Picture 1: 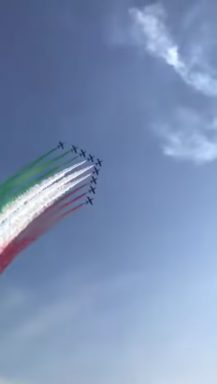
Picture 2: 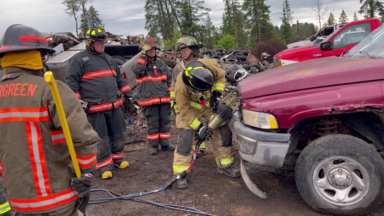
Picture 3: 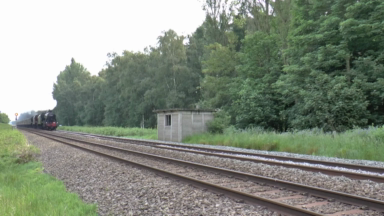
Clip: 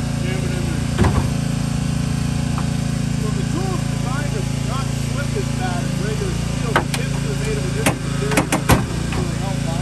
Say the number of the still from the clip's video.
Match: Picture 2